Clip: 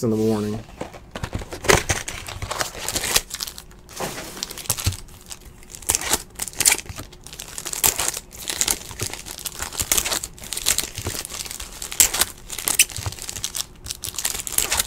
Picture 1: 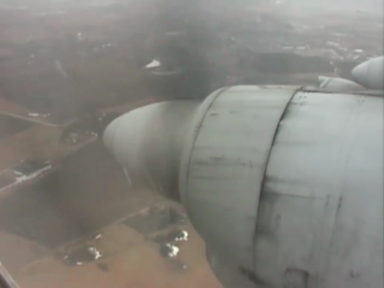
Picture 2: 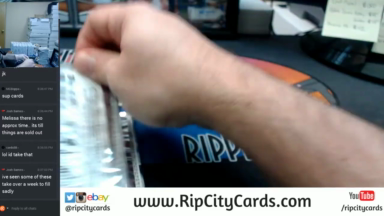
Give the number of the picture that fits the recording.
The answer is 2